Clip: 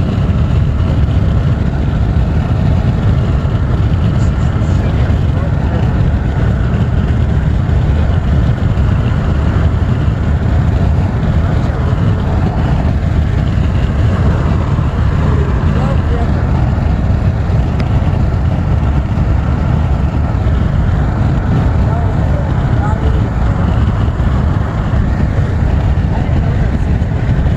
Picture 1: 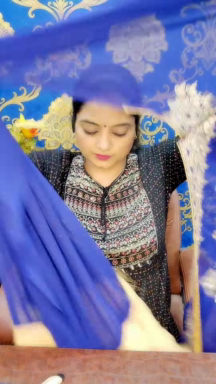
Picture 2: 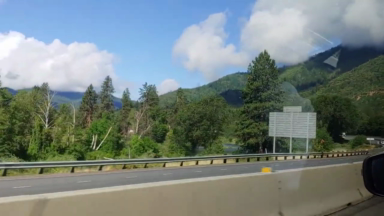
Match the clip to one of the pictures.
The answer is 2